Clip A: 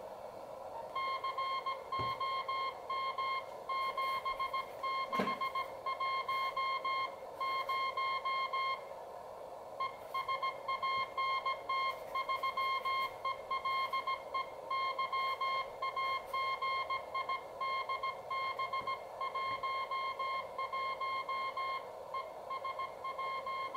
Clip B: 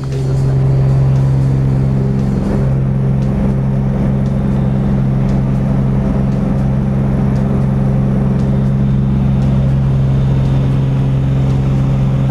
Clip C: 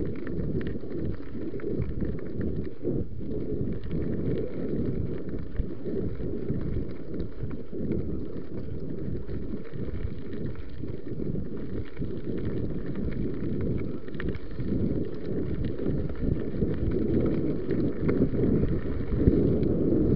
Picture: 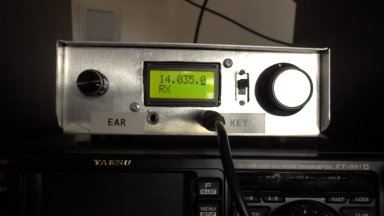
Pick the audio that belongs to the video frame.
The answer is A